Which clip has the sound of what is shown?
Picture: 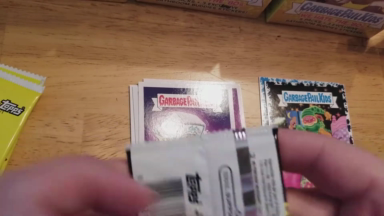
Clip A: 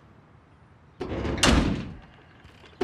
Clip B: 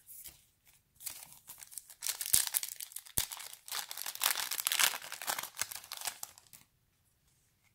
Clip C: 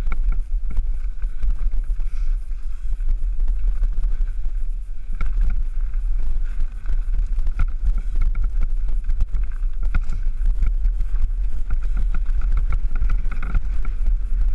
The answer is B